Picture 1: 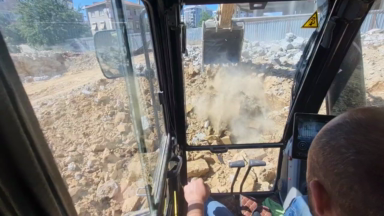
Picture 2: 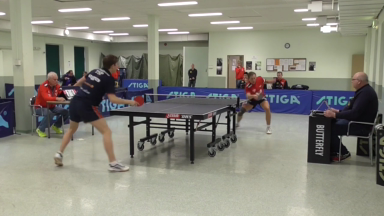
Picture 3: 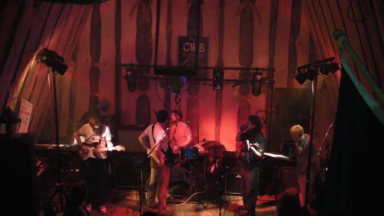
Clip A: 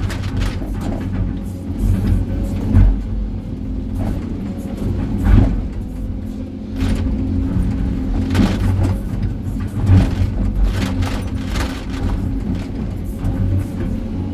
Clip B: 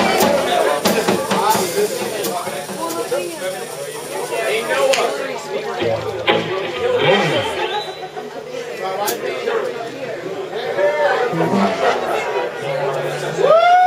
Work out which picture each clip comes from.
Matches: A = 1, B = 3